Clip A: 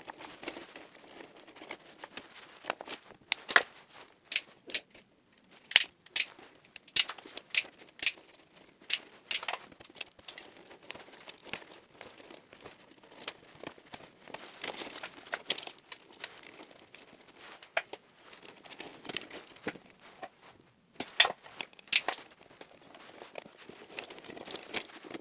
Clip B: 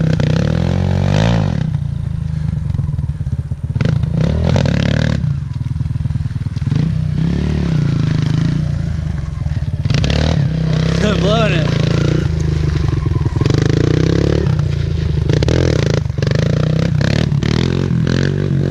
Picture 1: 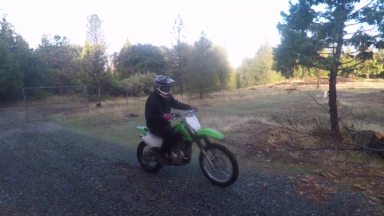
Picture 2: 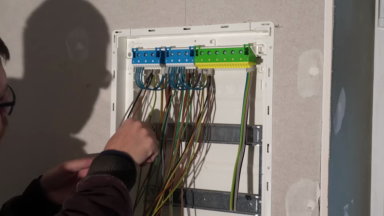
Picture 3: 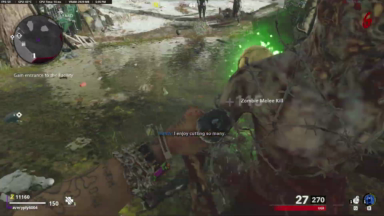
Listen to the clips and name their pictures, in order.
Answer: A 2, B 1